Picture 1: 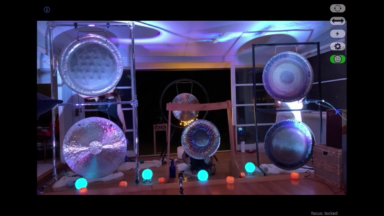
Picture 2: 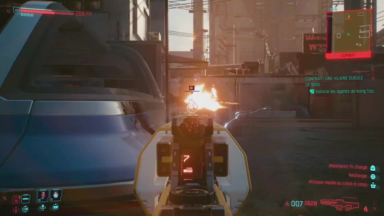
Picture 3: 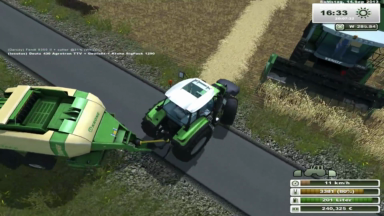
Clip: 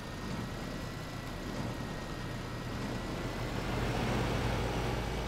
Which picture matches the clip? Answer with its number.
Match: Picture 3